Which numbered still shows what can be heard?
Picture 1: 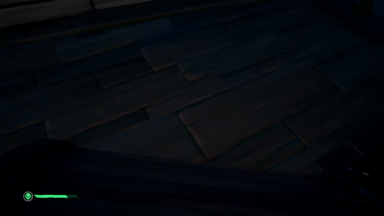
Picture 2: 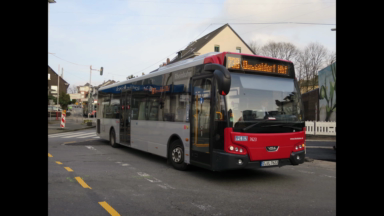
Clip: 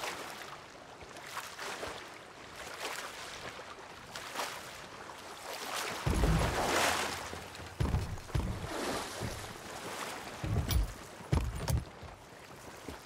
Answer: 1